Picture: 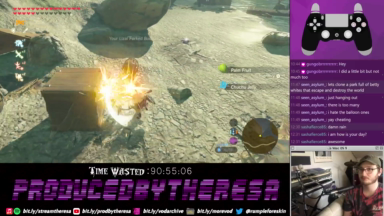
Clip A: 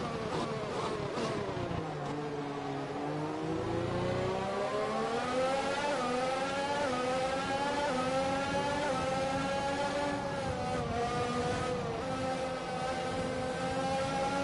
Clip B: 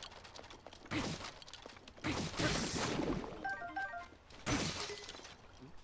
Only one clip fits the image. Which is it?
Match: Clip B